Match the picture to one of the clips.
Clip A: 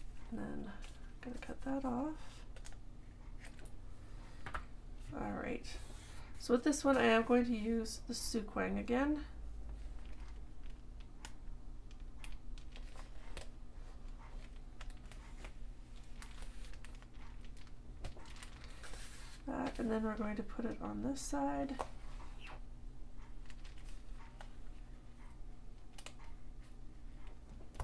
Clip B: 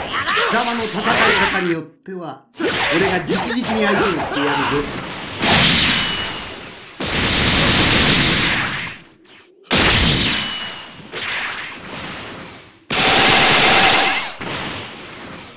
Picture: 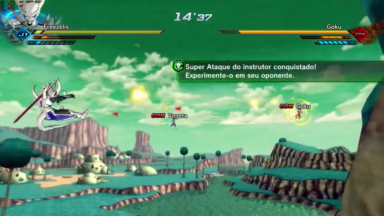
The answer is B